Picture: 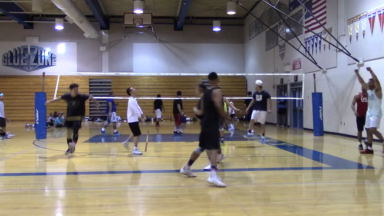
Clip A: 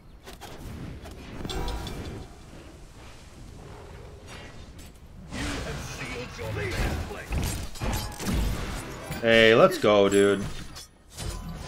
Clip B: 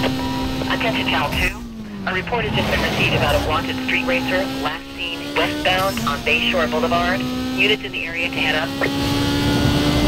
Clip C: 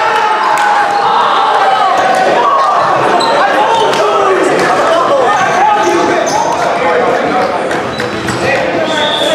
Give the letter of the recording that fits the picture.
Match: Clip C